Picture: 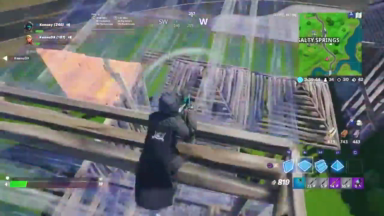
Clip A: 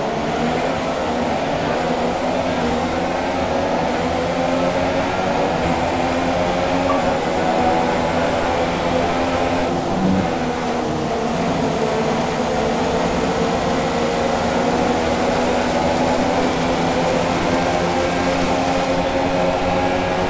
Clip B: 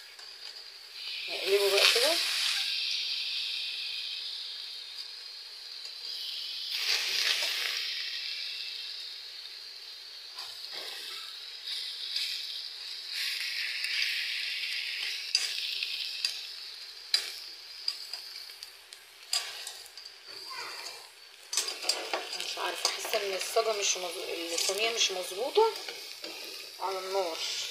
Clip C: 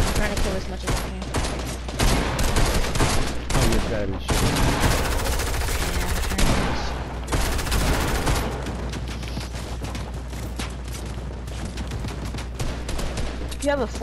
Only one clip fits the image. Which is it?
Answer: C